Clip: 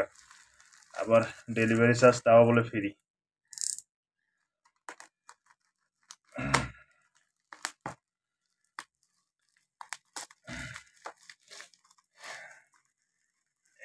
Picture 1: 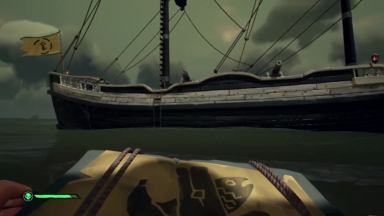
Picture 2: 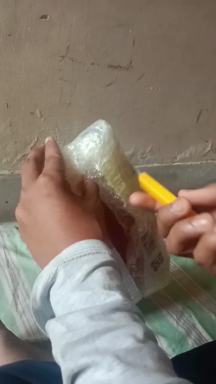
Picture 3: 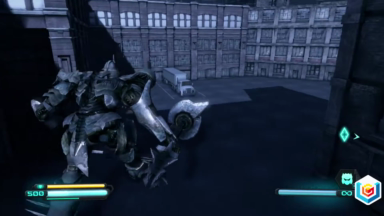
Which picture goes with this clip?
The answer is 2